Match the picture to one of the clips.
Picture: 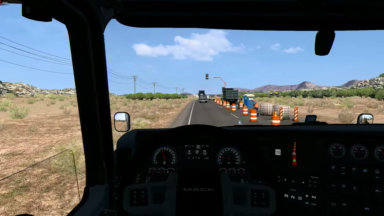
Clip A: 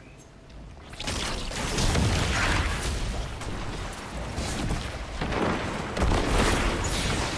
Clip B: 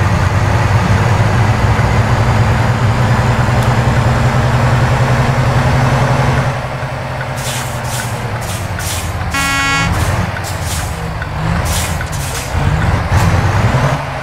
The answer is B